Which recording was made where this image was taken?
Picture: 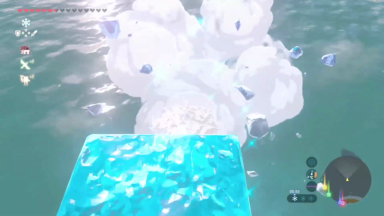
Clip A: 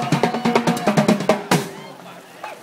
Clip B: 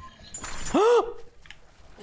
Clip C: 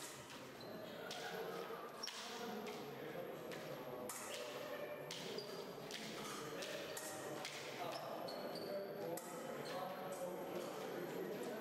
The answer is B